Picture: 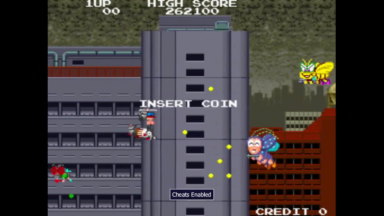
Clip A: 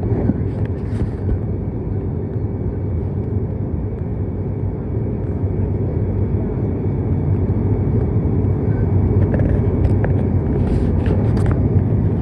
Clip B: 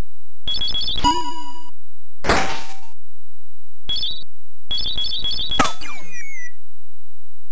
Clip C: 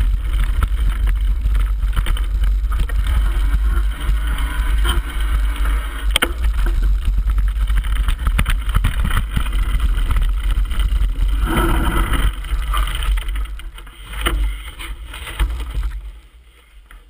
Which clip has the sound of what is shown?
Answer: B